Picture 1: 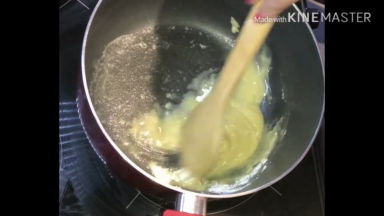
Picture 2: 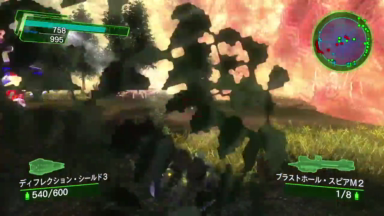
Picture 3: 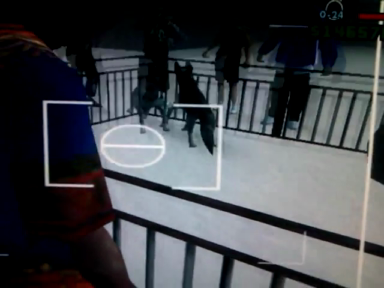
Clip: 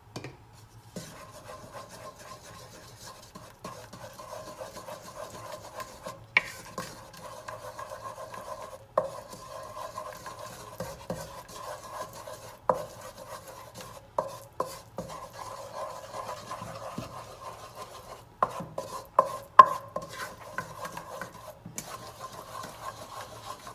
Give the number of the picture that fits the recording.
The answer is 1